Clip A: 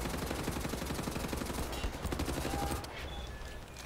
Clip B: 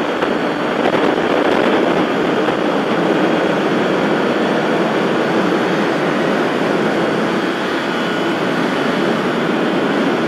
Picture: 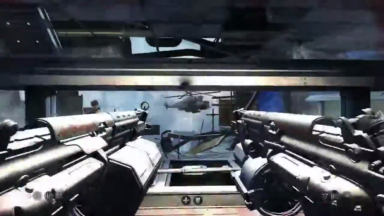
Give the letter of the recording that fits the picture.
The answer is A